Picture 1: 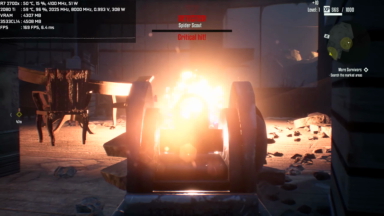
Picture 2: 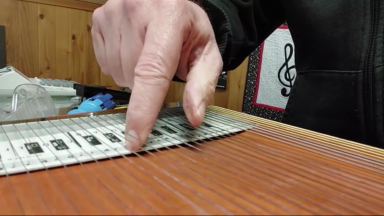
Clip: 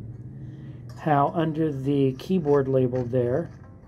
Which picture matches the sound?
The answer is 2